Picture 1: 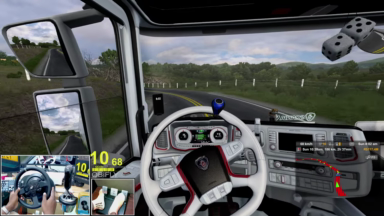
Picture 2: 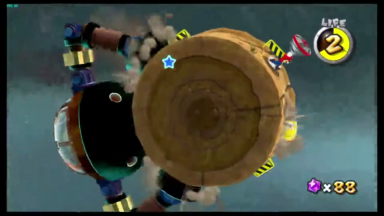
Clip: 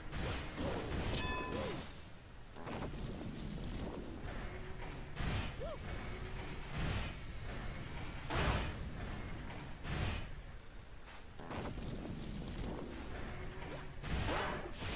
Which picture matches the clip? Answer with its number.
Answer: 2